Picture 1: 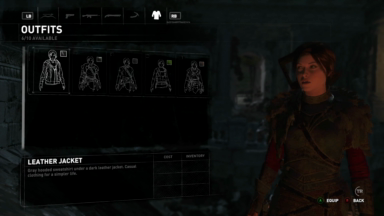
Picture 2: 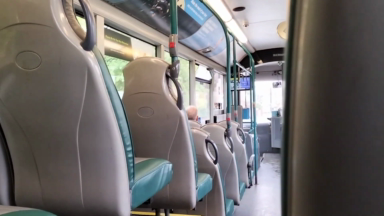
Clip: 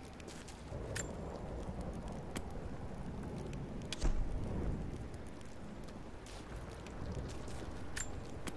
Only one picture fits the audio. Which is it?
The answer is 1